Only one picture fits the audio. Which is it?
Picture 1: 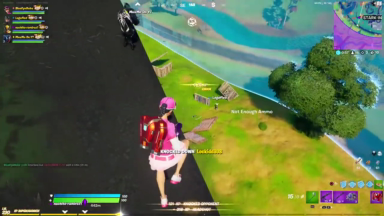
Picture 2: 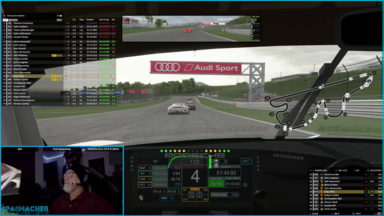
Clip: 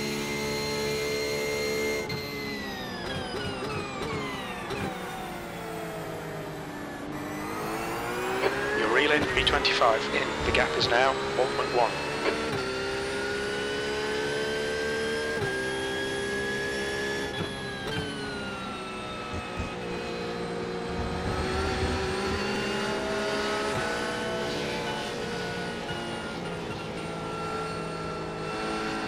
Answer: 2